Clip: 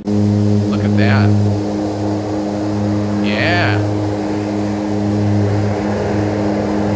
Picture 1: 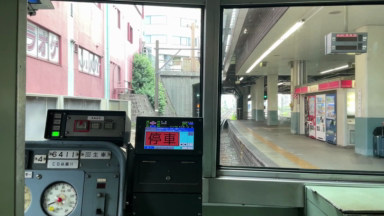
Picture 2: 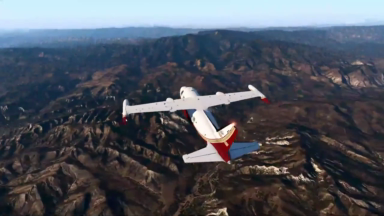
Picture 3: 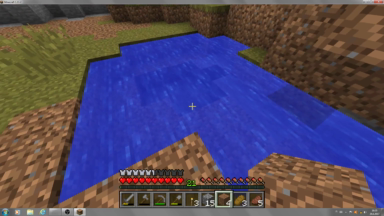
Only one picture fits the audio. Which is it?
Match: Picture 2